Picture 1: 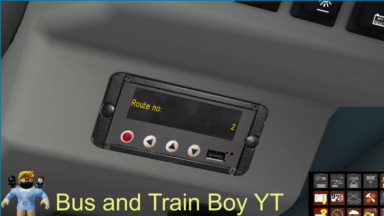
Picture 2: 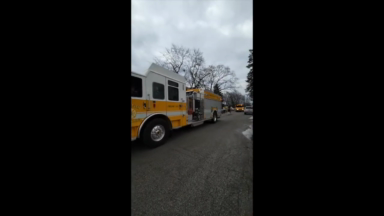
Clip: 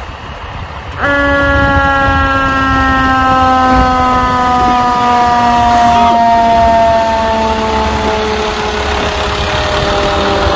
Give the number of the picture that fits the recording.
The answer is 2